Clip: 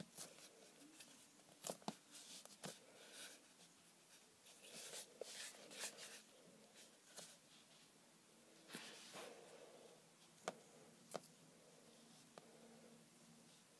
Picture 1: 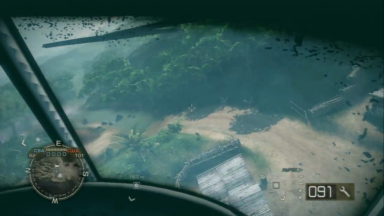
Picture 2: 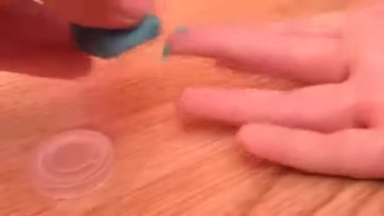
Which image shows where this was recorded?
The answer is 2